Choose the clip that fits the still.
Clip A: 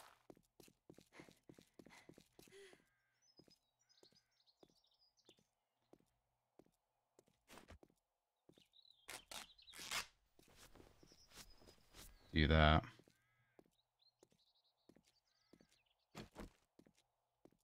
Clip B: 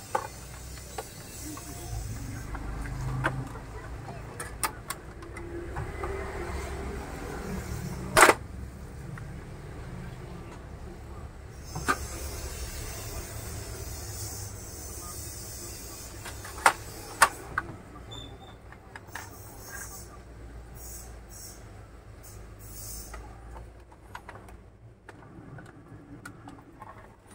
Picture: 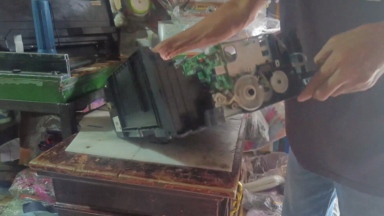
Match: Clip B